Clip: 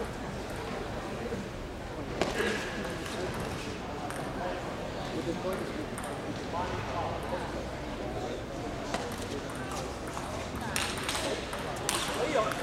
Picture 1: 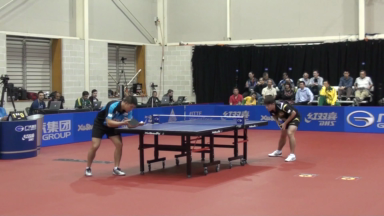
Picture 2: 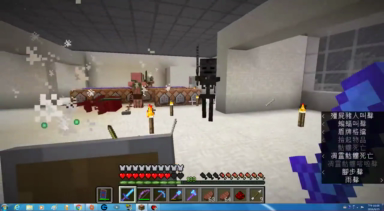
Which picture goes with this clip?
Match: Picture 1